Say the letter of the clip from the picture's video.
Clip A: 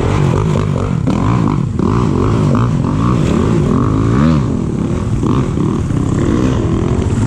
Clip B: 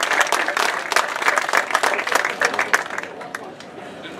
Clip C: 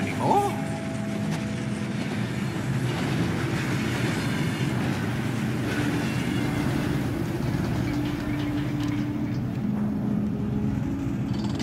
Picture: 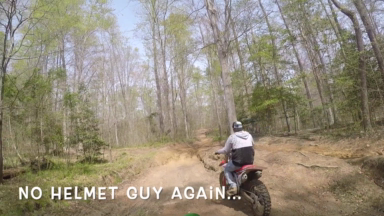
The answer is A